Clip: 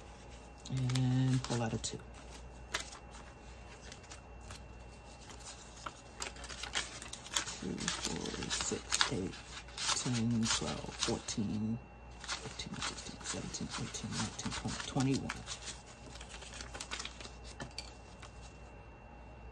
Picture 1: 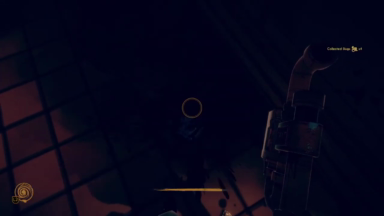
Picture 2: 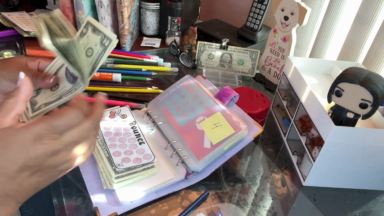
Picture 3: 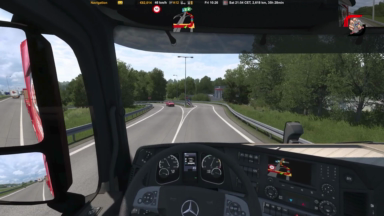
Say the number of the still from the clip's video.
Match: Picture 2